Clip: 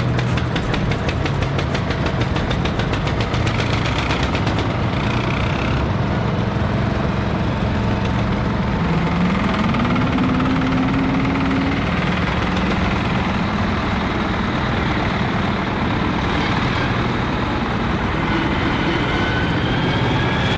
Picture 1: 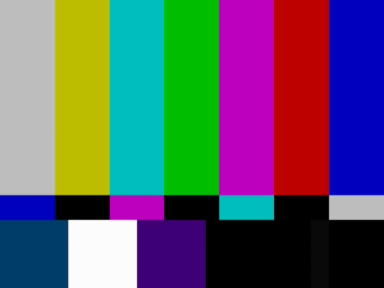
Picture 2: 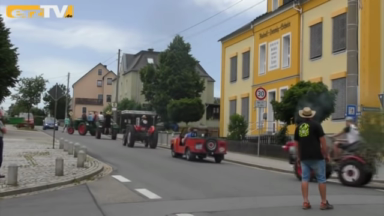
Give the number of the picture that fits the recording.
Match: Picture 2